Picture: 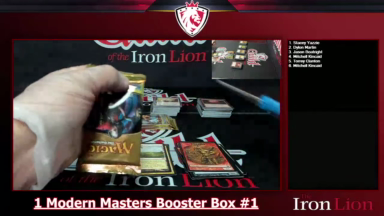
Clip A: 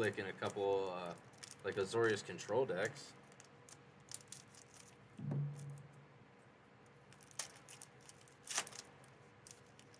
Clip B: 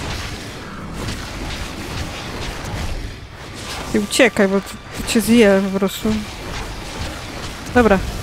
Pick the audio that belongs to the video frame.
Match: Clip A